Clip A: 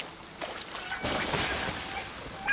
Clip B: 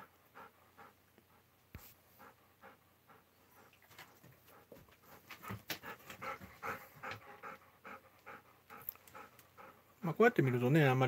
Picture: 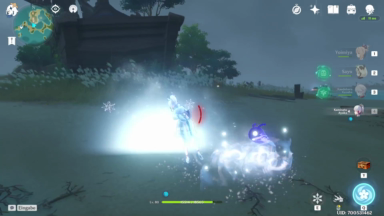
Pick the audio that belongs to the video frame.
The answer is A